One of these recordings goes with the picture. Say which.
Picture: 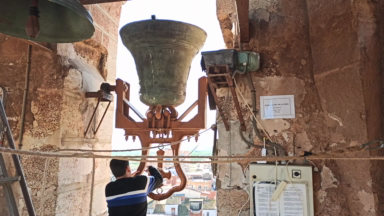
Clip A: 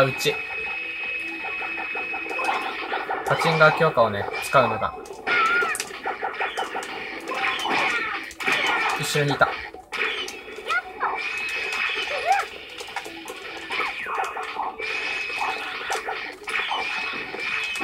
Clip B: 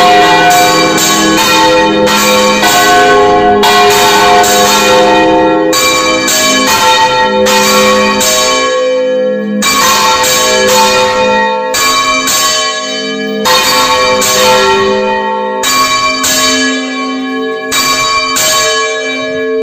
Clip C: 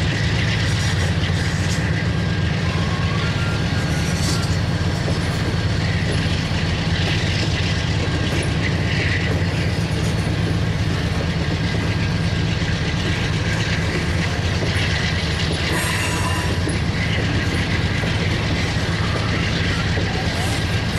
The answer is B